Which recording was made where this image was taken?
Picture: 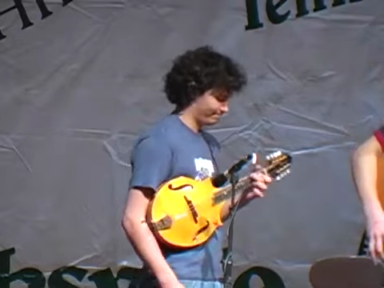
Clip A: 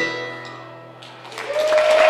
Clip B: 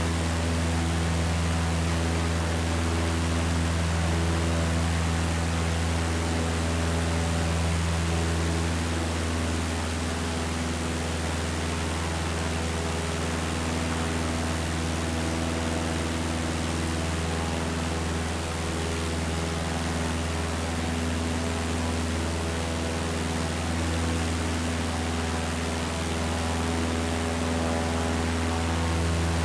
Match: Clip A